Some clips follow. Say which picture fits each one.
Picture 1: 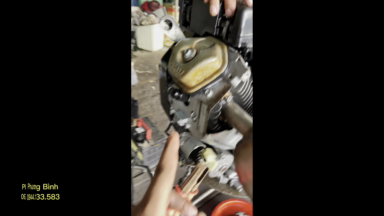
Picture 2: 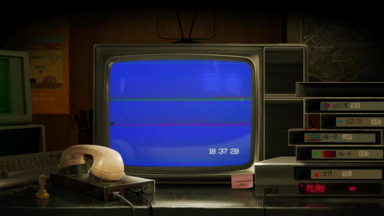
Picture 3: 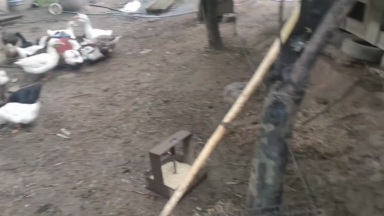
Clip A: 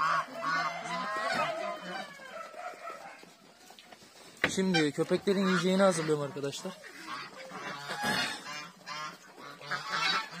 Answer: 3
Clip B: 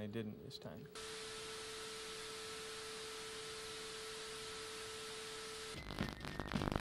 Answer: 2